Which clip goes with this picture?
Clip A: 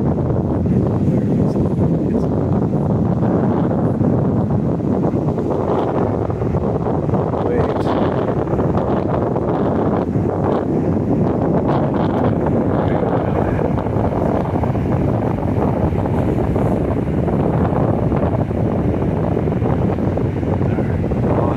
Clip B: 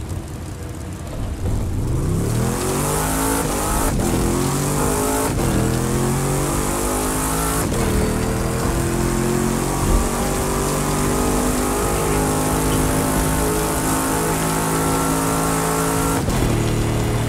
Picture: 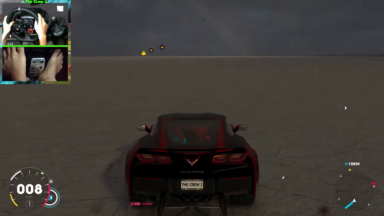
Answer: B